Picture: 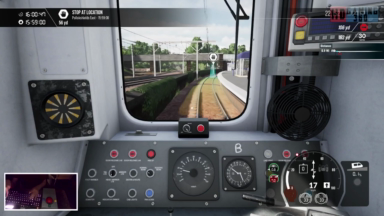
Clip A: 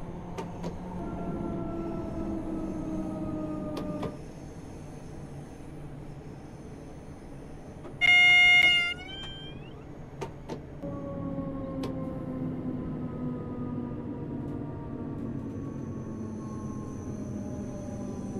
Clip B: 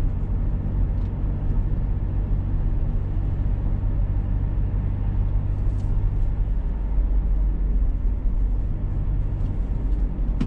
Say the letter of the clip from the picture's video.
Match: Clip A